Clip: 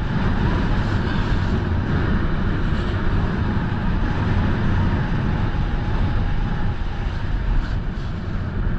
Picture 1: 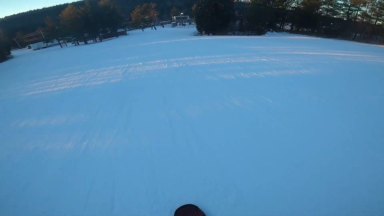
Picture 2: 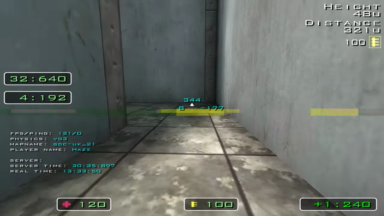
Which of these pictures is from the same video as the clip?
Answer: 1